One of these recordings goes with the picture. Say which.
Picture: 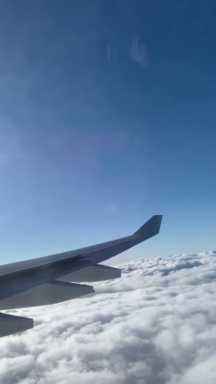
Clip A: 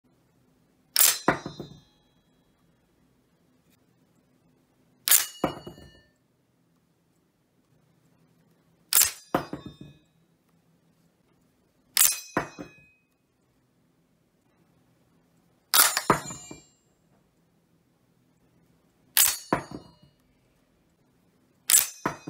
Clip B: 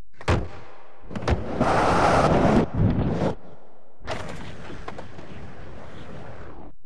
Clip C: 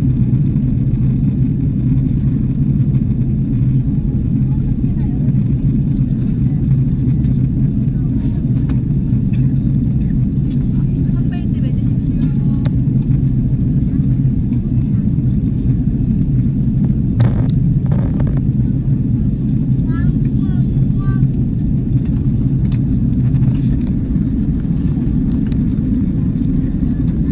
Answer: C